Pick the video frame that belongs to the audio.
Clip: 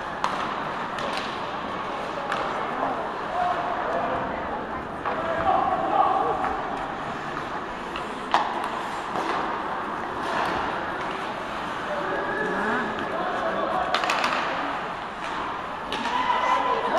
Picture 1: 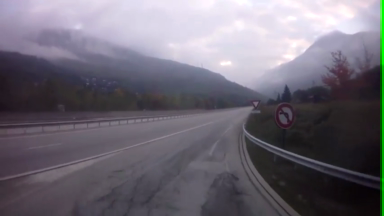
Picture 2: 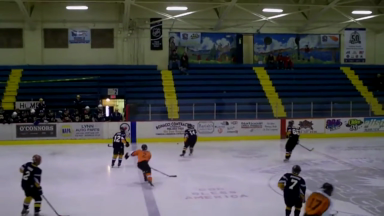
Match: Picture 2